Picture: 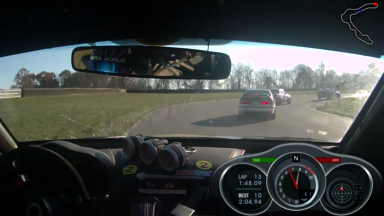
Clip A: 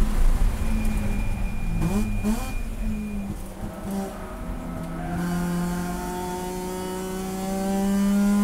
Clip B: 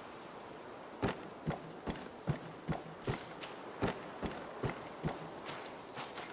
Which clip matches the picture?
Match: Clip A